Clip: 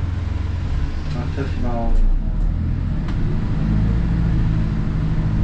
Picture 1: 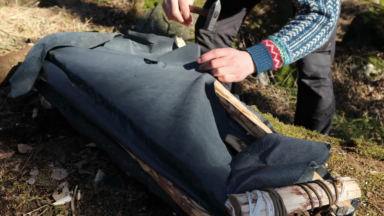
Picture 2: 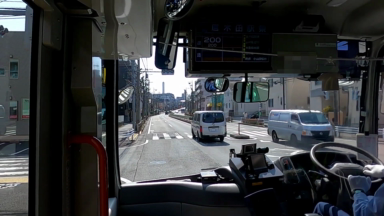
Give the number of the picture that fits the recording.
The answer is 2